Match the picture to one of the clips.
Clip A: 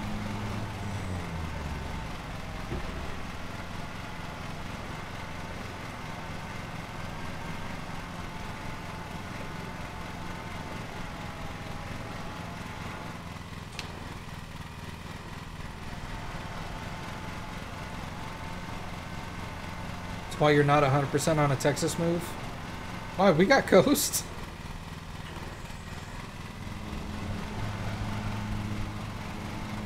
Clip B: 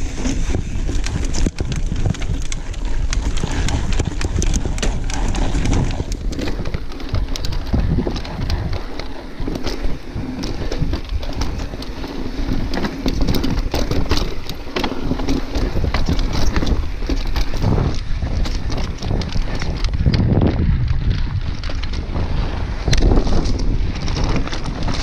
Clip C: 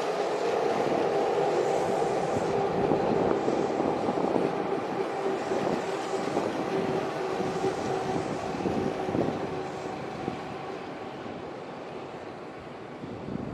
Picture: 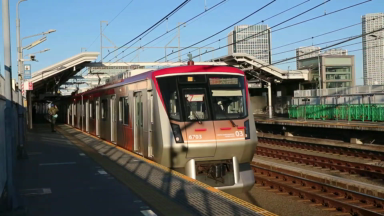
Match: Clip C